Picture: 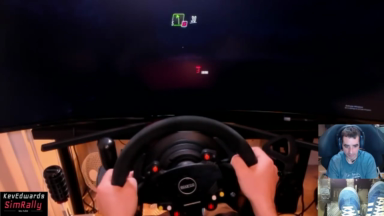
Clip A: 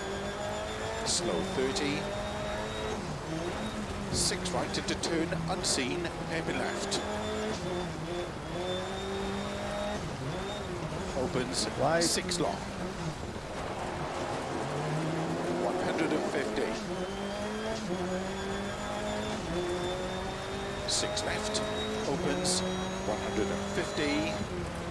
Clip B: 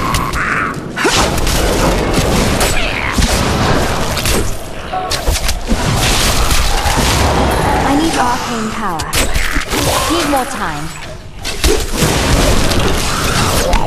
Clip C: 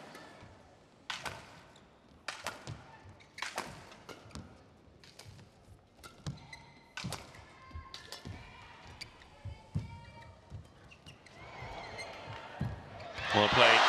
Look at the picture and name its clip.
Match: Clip A